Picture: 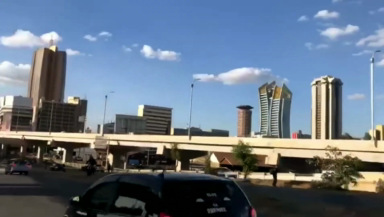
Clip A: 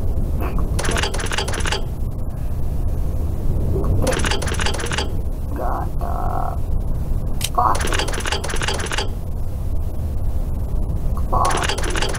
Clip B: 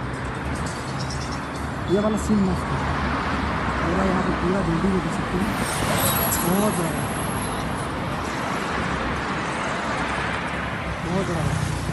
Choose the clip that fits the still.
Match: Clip B